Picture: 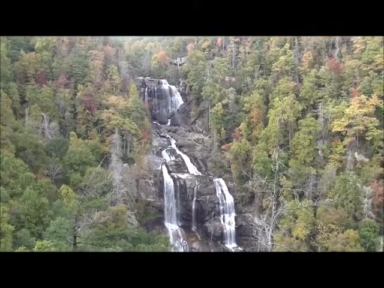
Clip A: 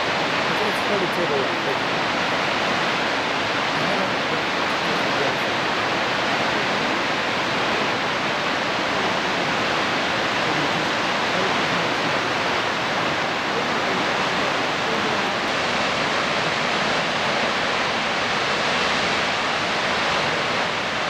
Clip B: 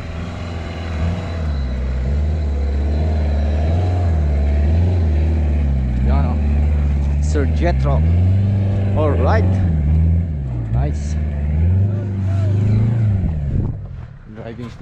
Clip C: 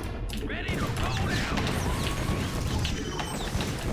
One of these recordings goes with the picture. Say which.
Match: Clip A